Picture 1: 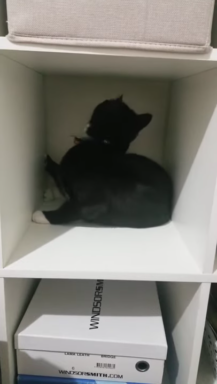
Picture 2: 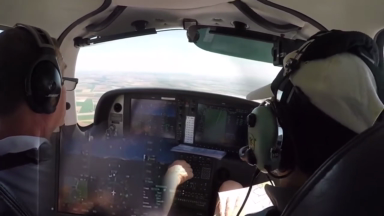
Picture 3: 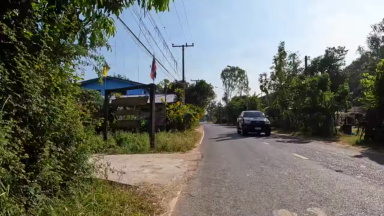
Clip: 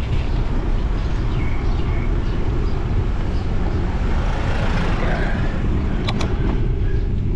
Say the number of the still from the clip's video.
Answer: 3